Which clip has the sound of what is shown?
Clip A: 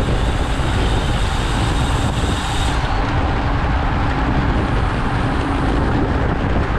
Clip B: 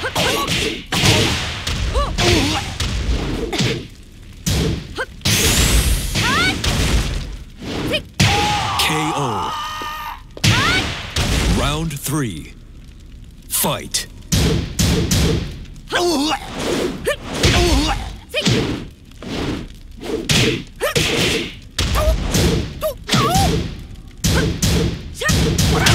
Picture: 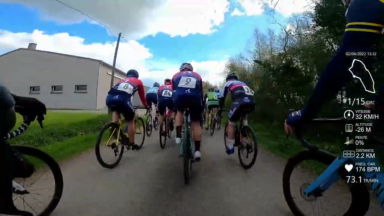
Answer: A